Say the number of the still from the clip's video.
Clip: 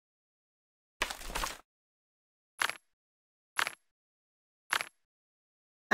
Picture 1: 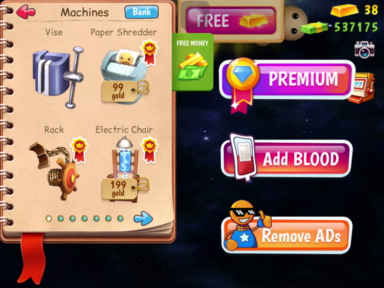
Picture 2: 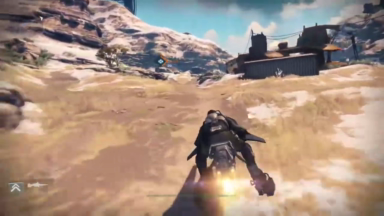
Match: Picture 1